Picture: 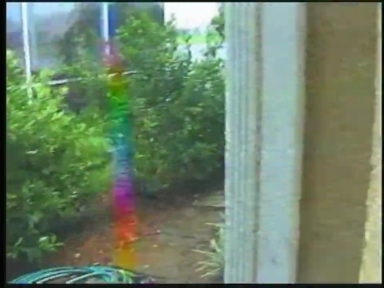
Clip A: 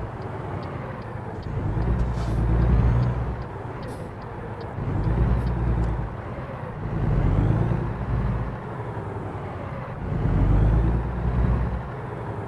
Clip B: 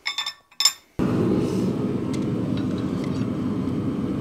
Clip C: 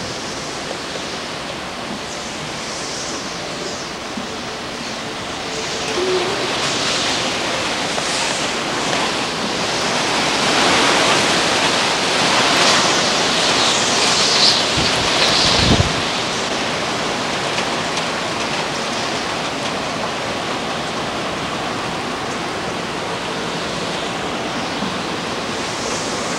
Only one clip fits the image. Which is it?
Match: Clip C